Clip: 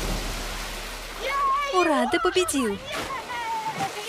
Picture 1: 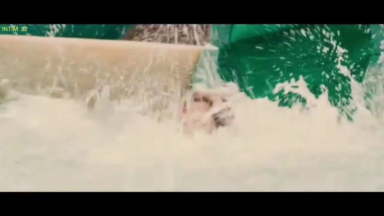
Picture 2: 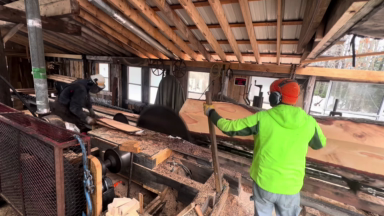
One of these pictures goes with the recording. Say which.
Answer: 1